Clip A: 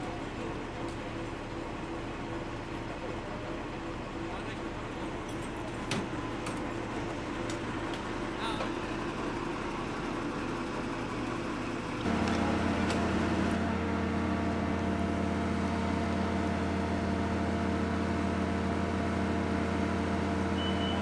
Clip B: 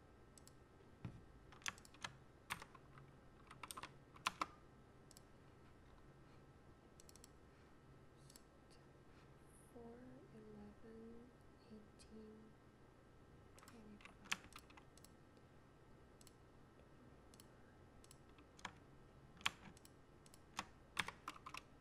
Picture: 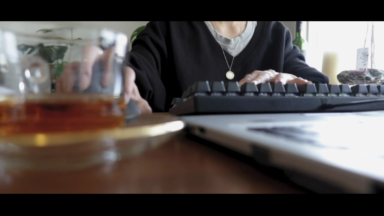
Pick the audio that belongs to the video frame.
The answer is B